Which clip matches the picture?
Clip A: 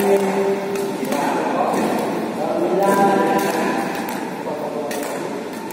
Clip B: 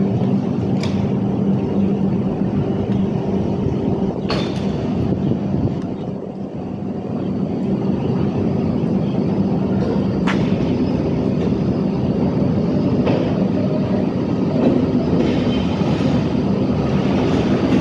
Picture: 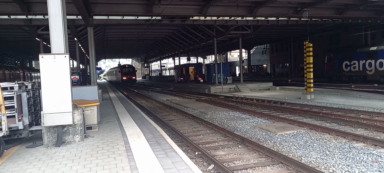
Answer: B